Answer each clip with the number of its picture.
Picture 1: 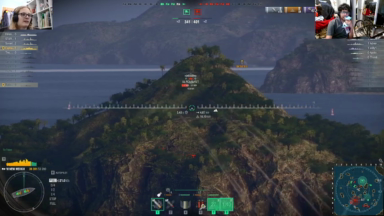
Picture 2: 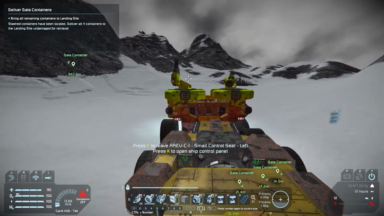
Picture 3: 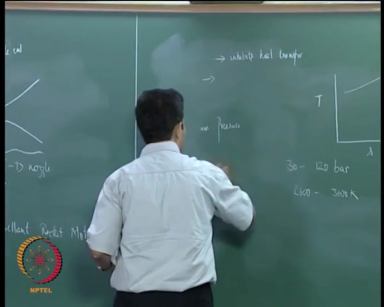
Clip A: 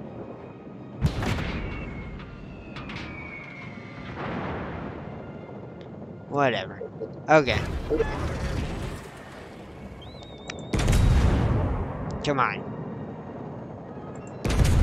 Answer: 1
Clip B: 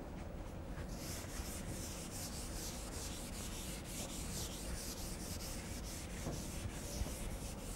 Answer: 3